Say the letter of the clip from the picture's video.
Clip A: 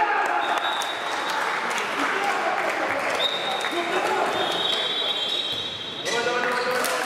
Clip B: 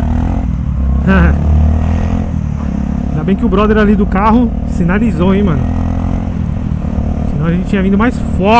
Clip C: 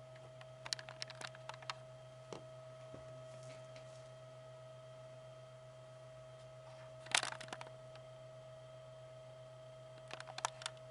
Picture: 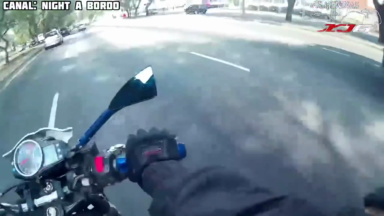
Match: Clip B